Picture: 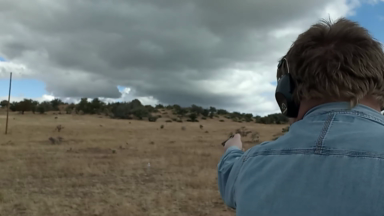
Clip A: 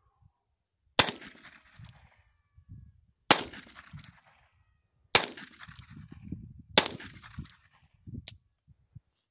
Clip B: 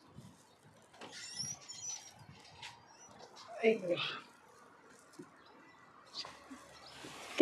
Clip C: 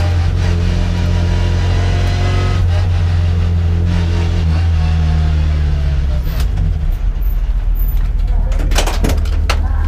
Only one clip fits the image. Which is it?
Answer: A